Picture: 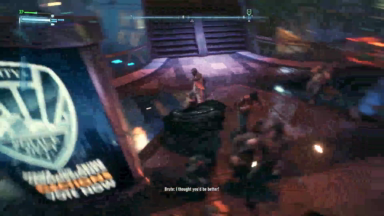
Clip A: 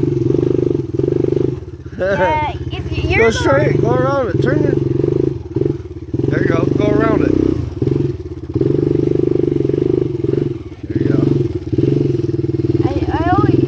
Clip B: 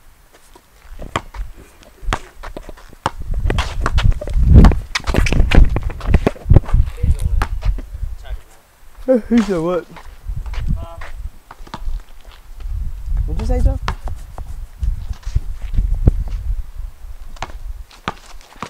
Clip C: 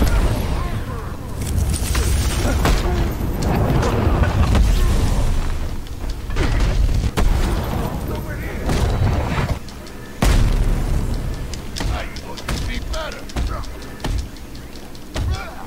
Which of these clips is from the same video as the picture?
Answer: C